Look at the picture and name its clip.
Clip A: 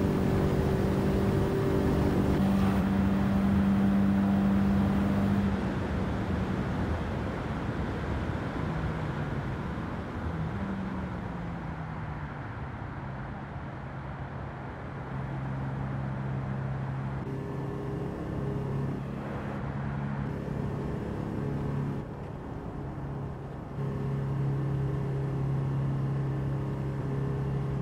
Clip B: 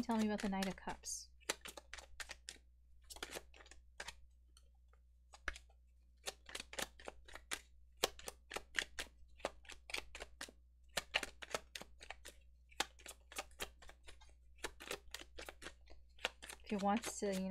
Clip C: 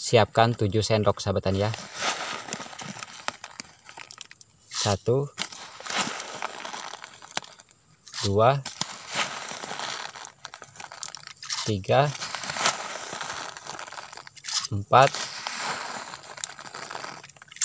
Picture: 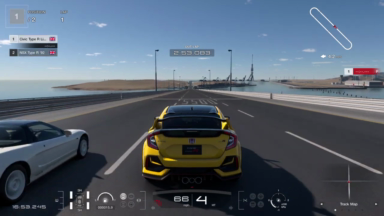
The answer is A